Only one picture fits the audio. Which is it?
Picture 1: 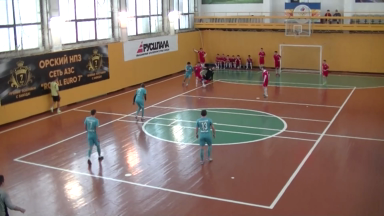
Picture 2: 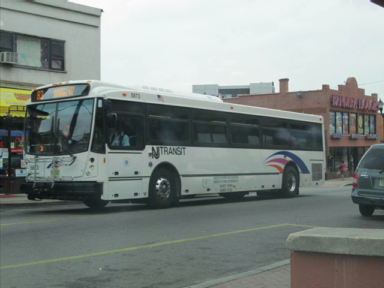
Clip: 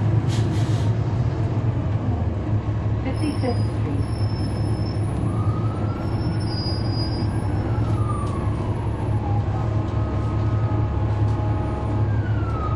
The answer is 2